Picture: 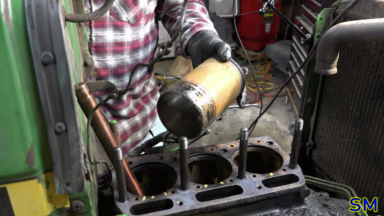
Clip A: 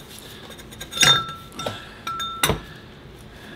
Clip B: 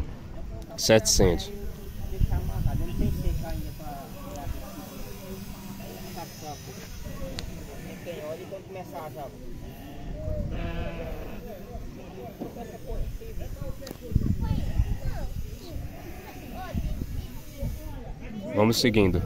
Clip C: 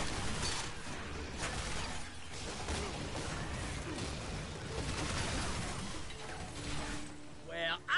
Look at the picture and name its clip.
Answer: A